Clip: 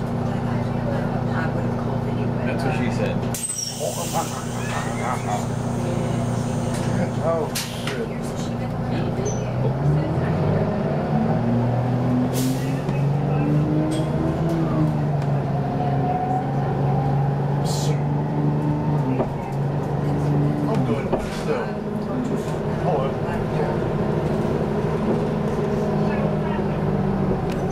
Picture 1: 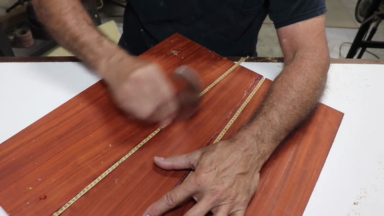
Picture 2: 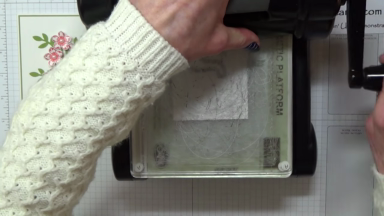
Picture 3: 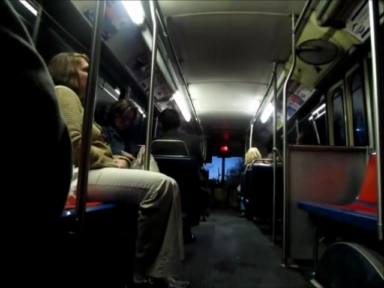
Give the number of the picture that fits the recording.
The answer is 3